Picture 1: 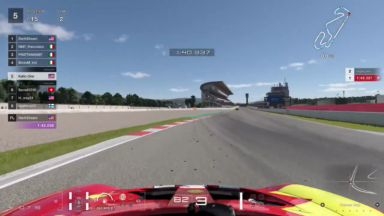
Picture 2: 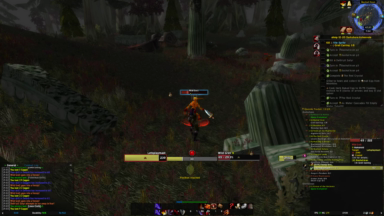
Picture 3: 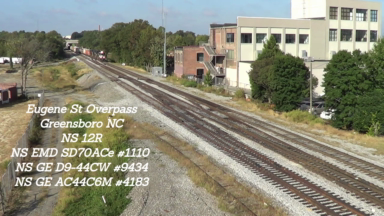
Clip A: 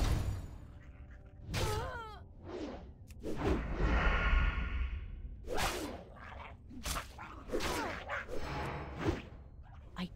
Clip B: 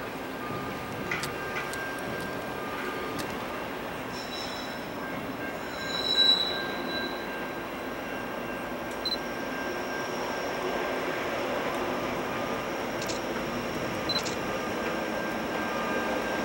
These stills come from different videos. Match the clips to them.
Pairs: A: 2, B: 3